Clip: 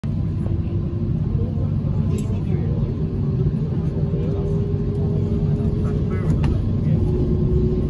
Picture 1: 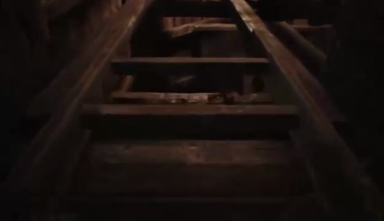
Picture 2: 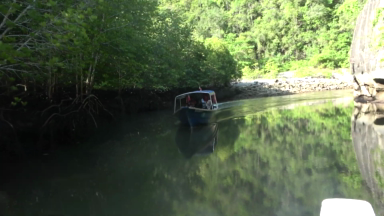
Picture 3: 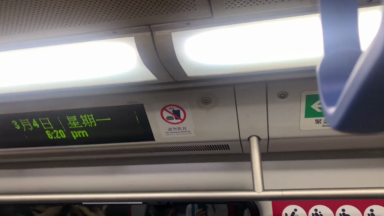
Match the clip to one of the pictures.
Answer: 3